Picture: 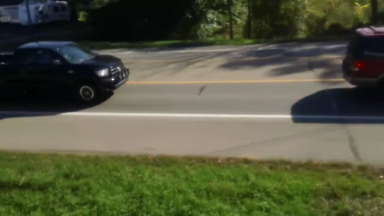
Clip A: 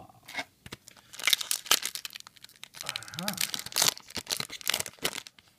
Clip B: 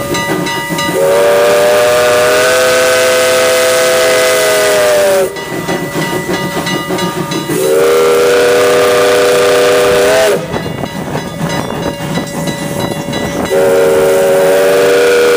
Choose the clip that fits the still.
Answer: B